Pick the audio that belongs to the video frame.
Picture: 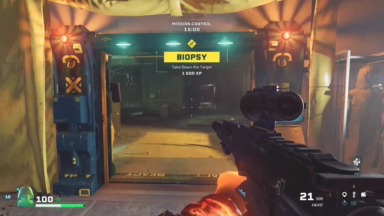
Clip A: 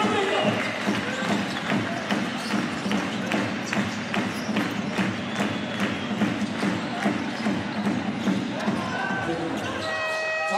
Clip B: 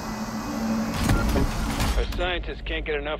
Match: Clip B